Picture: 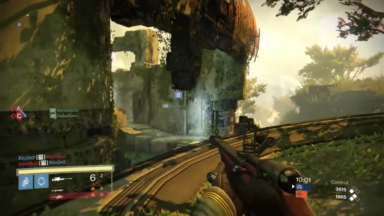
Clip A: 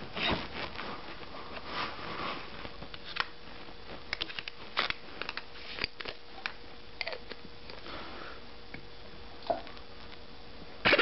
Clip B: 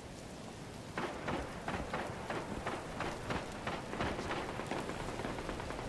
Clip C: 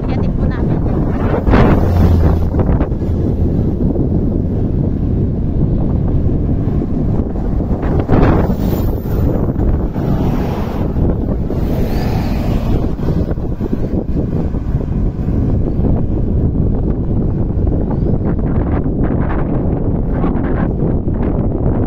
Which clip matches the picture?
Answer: B